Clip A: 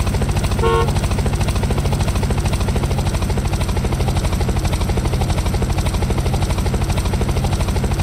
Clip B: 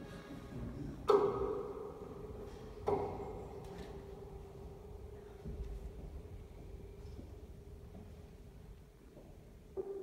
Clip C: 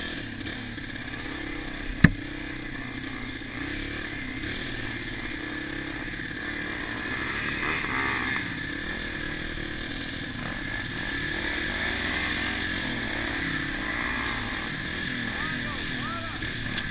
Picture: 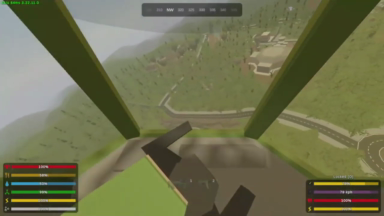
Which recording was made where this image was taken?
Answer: A